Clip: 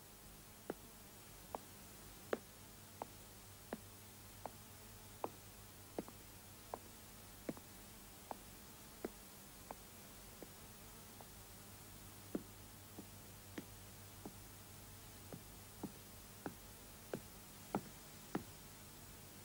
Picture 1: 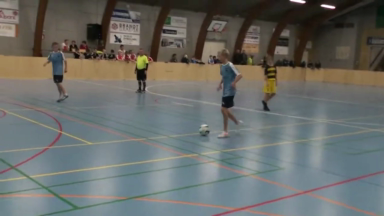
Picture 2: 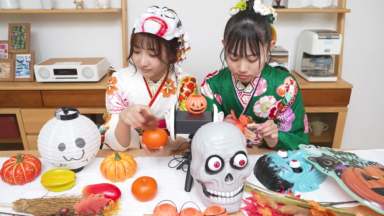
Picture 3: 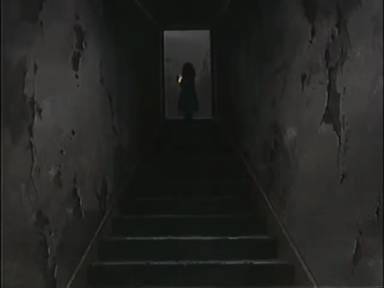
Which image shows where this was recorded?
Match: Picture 3